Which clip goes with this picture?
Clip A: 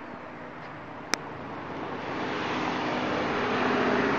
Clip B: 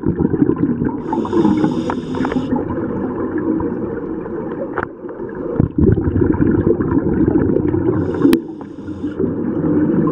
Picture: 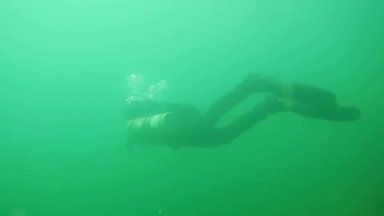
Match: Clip B